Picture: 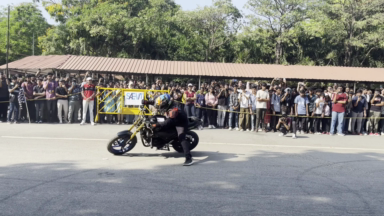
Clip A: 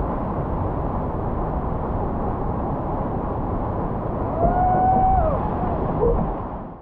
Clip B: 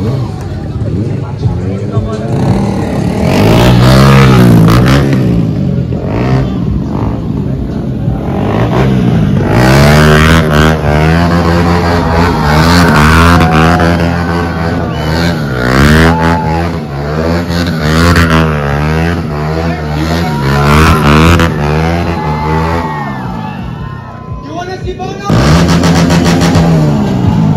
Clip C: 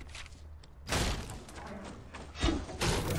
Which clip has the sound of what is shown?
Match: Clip B